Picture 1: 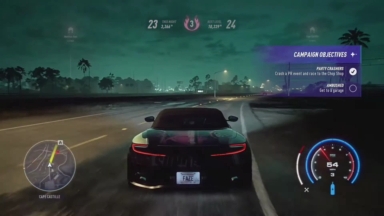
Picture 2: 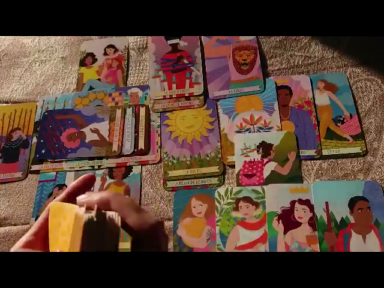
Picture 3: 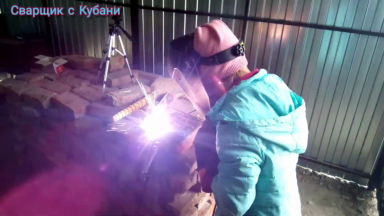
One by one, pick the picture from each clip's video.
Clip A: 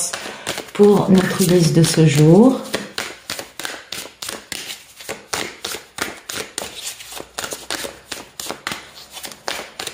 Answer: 2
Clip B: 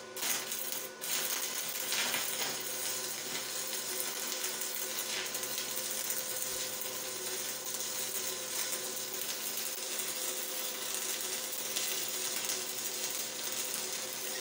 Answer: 3